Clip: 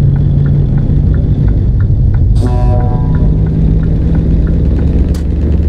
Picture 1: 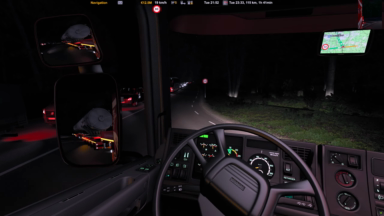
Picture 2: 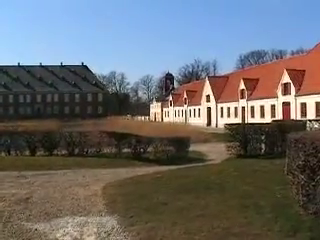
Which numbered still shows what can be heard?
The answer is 1